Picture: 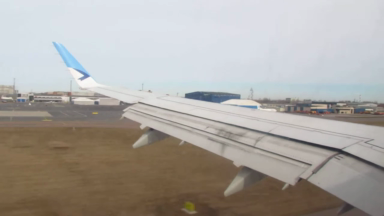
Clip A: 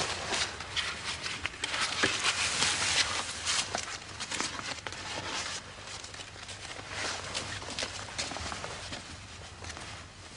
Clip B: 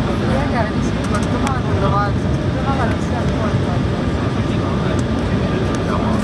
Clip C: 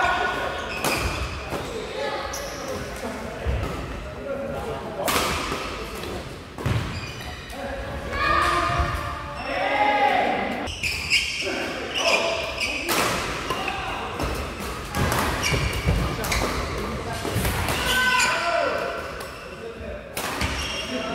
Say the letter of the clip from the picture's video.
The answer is B